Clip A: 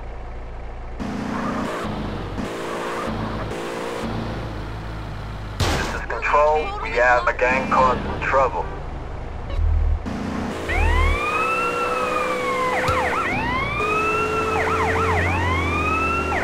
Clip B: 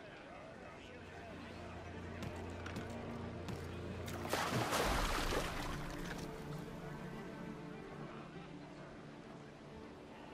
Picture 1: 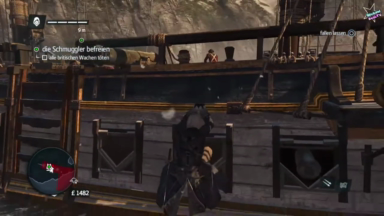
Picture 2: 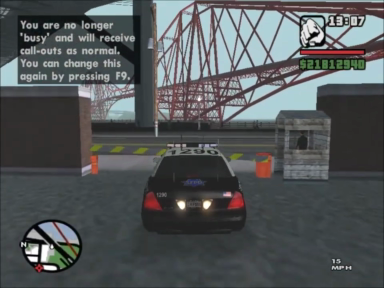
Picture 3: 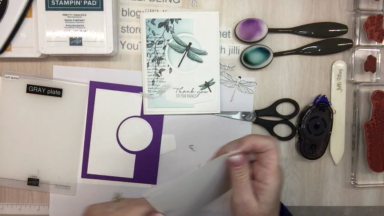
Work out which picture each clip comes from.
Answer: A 2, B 1